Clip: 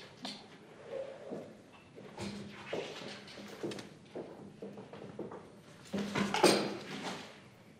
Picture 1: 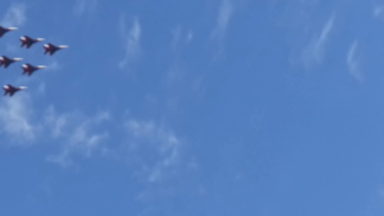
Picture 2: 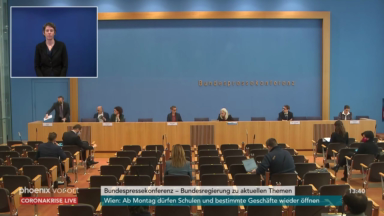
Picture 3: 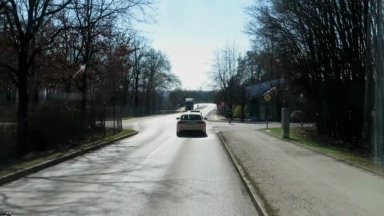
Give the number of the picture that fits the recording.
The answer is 2